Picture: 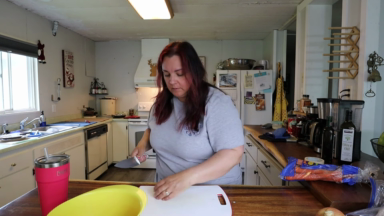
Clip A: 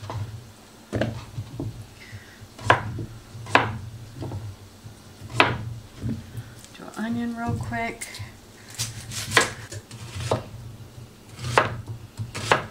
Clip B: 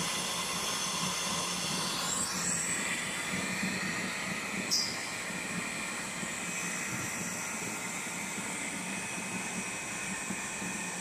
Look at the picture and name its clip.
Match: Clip A